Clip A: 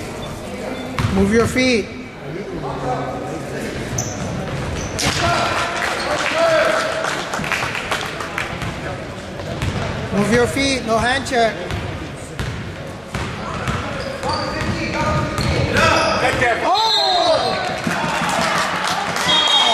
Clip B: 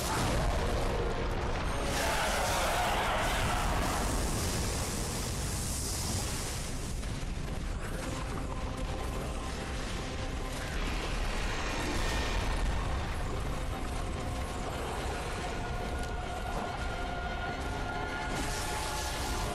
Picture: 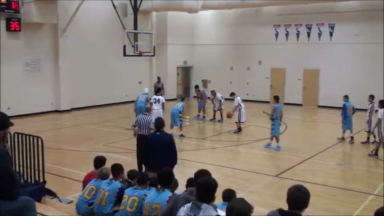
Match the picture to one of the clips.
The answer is A